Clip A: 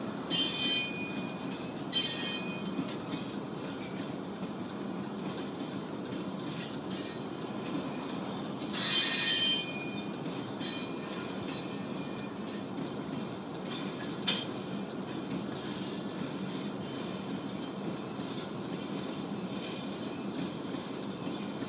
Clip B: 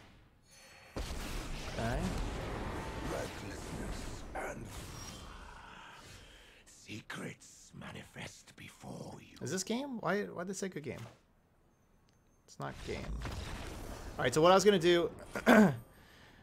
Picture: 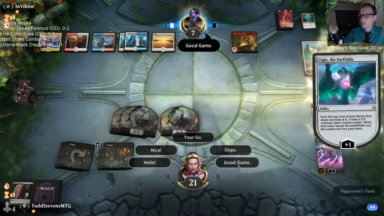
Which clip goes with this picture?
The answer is B